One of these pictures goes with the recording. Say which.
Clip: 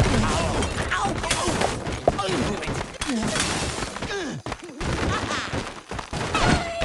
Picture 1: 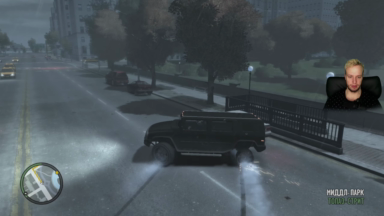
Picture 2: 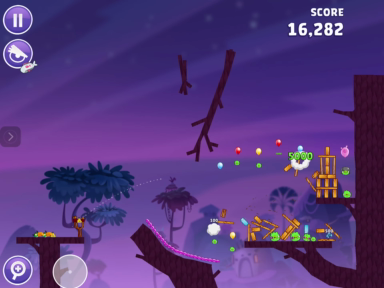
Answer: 2